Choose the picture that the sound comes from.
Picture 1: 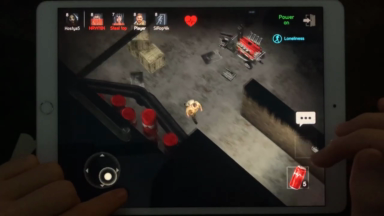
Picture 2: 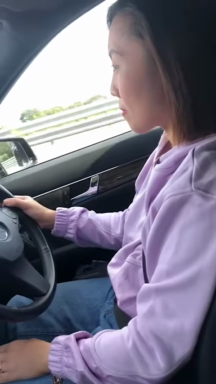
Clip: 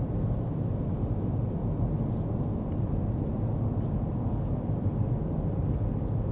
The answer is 2